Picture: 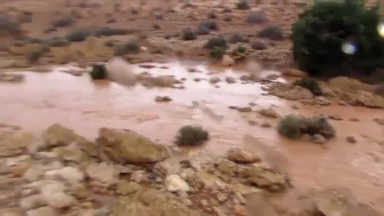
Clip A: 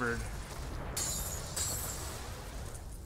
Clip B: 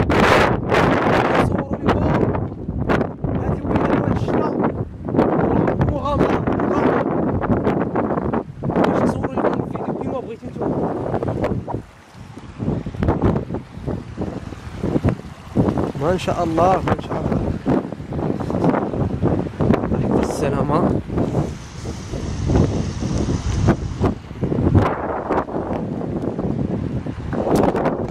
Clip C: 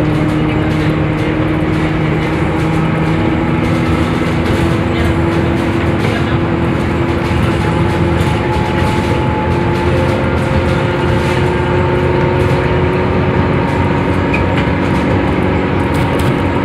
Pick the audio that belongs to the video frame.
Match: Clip B